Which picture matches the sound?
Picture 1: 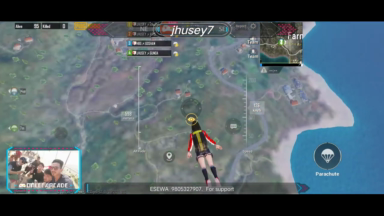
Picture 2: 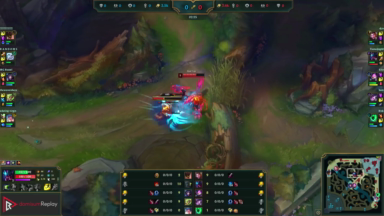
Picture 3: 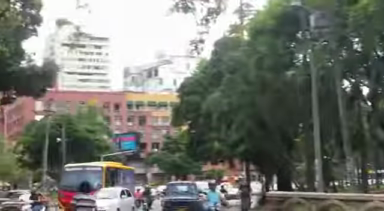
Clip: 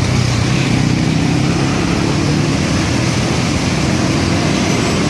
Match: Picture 3